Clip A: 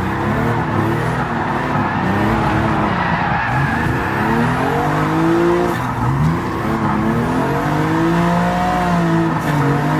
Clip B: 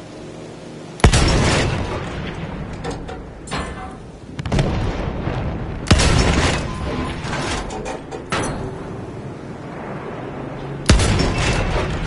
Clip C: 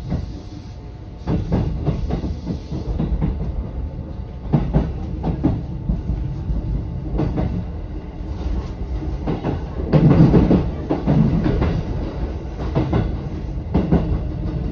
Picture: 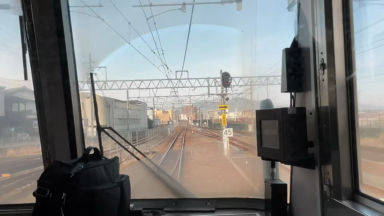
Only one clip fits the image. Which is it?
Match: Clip C